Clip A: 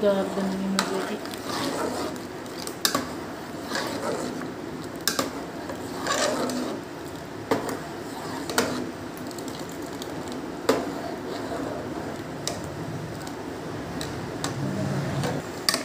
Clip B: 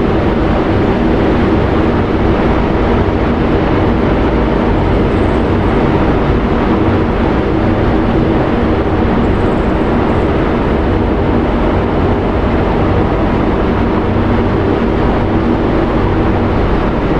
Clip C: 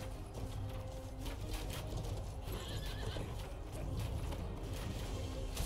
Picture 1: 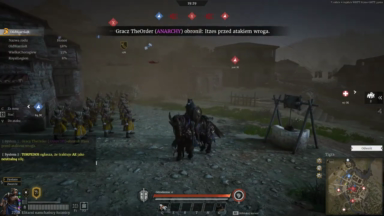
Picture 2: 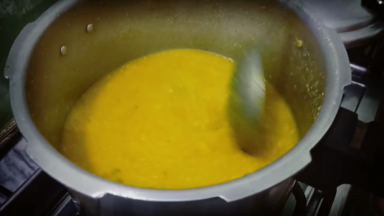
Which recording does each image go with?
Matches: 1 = C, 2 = A